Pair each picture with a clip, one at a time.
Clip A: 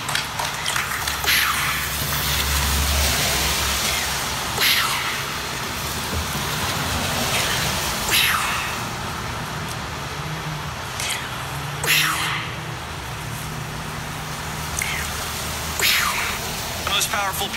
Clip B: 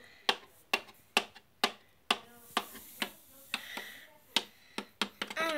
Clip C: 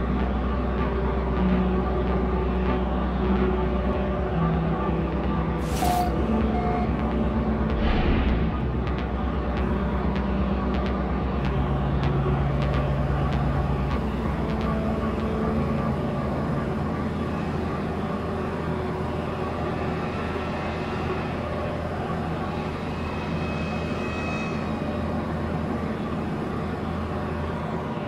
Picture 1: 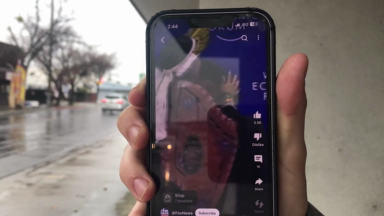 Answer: A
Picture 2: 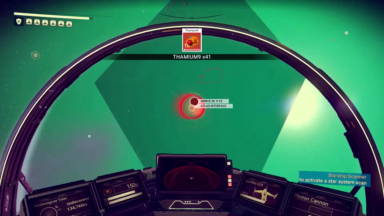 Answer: C